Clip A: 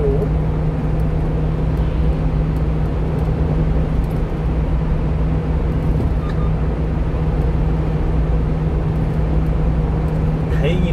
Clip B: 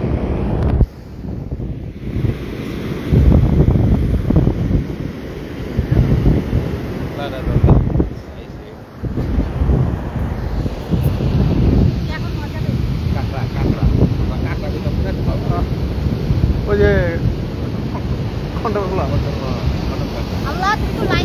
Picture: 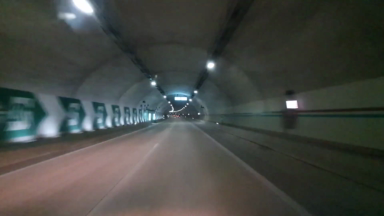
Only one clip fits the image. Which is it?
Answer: A